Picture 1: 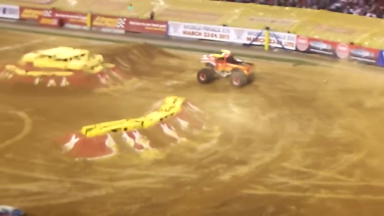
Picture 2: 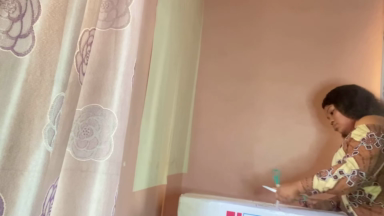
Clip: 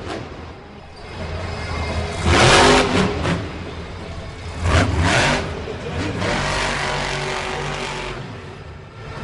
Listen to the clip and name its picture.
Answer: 1